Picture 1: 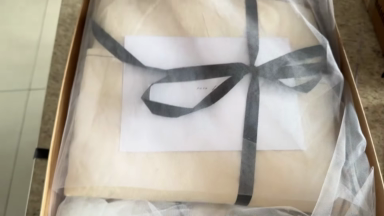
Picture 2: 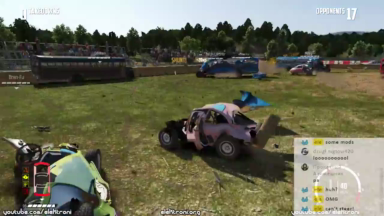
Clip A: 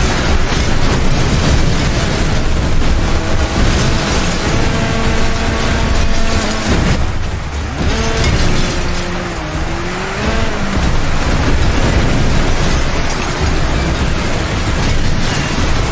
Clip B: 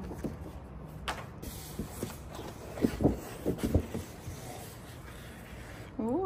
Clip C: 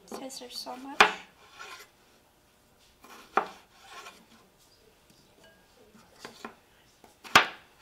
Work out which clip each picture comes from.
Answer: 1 B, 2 A